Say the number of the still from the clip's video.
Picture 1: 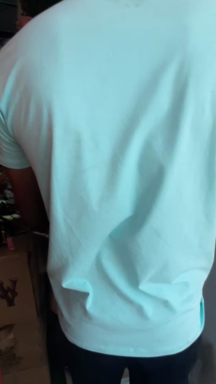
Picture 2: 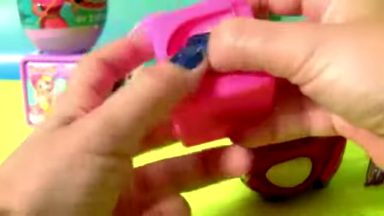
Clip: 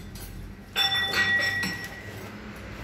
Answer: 1